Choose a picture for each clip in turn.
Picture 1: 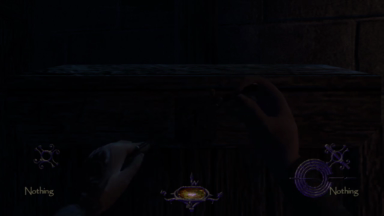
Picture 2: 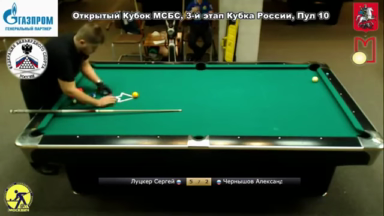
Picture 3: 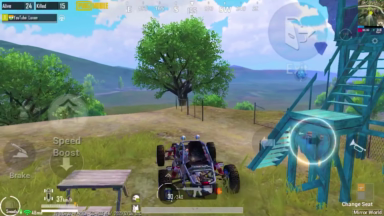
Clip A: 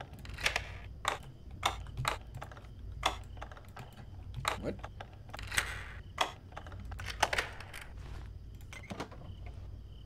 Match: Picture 1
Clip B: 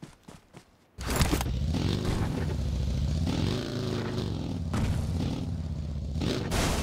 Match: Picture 3